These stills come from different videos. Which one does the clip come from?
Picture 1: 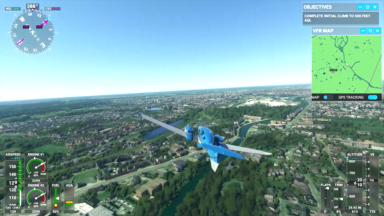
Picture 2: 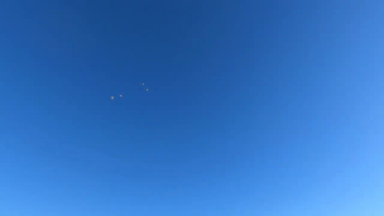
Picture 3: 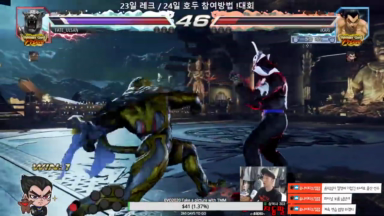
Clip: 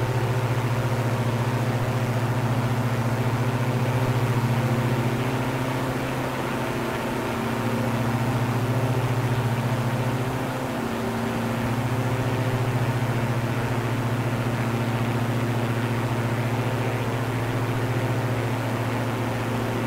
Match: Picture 1